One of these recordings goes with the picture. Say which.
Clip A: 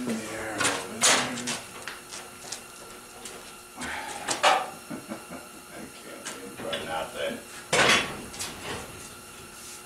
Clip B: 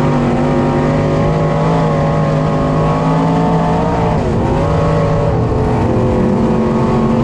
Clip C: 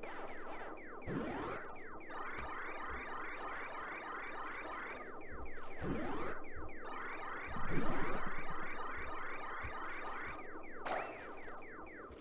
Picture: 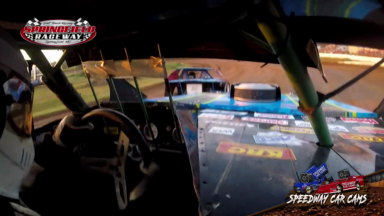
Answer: B